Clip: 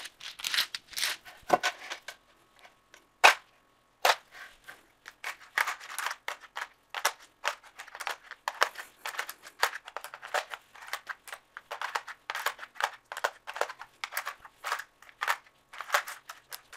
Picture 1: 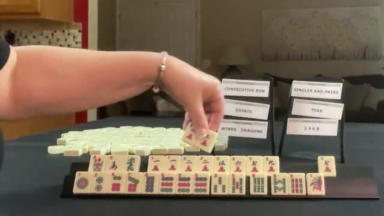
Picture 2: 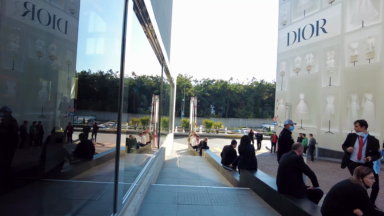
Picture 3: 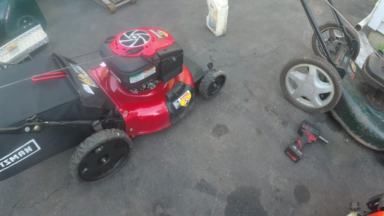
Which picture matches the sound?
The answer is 1